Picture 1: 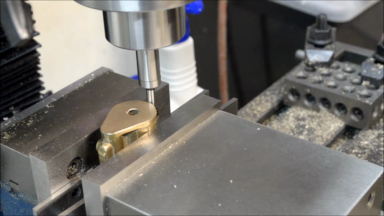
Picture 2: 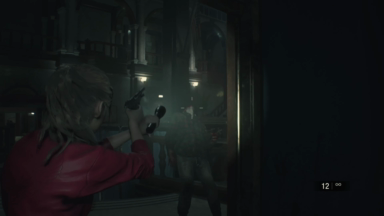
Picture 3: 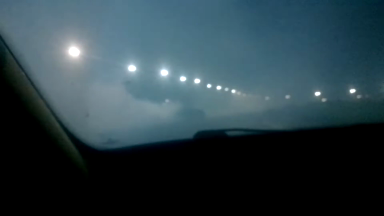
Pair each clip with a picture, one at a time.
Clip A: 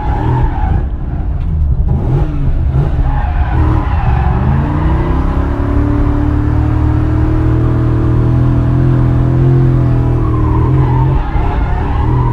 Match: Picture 3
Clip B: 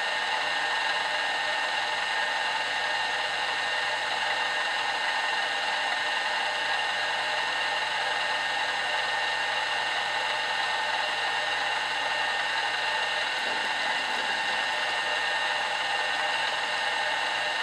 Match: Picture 1